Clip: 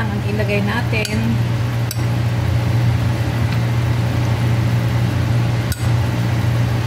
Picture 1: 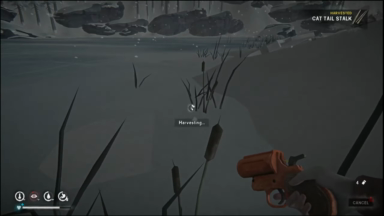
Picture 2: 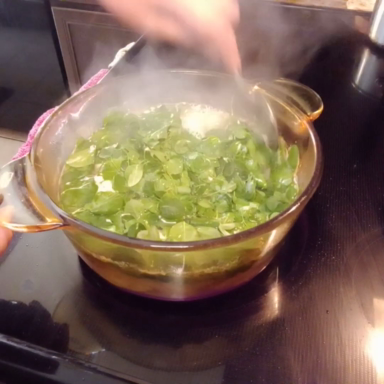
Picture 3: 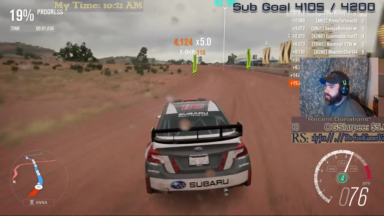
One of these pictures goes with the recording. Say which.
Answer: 2